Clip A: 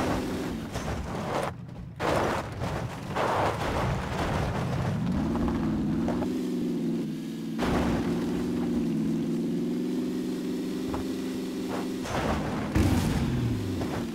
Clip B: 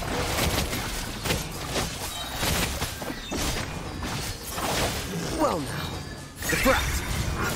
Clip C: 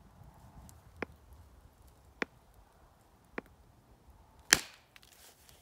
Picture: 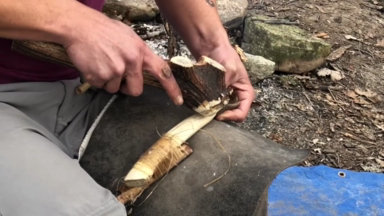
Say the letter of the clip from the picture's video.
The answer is C